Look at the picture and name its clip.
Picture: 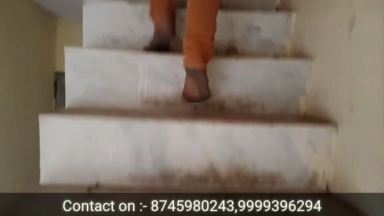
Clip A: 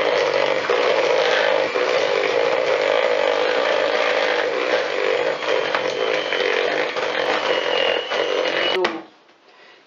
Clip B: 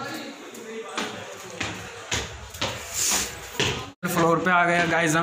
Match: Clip B